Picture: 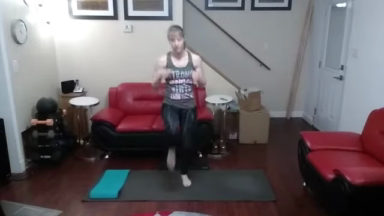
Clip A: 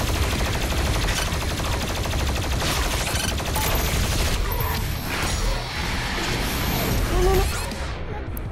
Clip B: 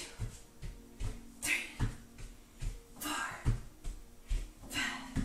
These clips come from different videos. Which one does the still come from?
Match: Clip B